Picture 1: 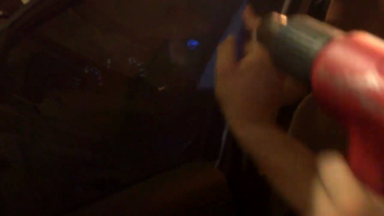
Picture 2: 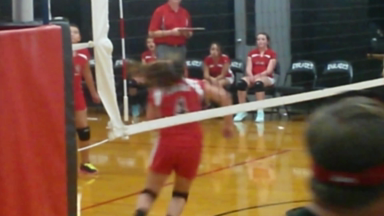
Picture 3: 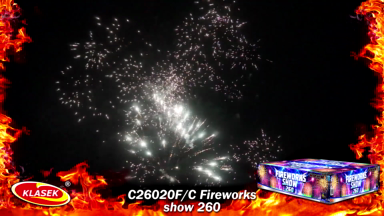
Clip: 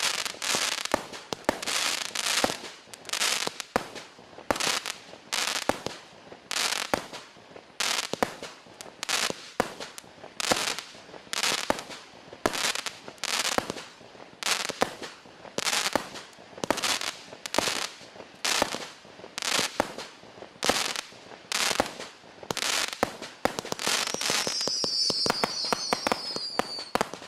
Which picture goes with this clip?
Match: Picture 3